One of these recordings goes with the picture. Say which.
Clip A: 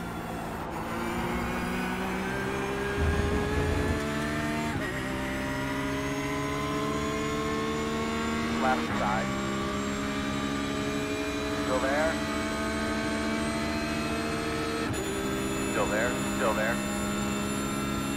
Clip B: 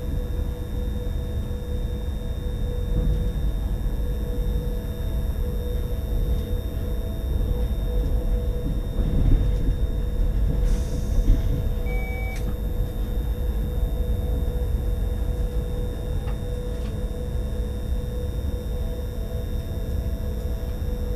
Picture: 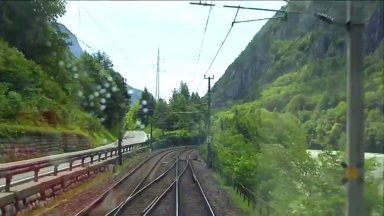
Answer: B